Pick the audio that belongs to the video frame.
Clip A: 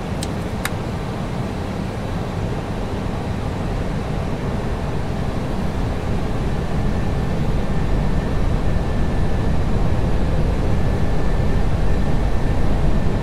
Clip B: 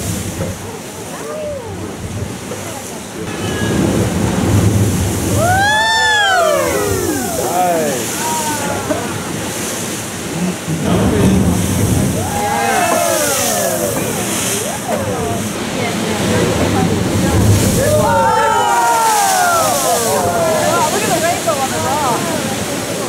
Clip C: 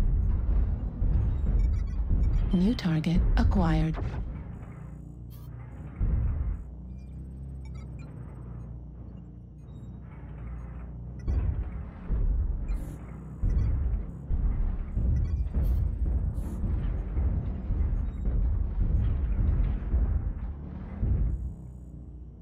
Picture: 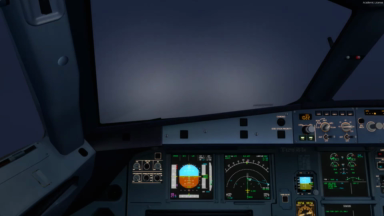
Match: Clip A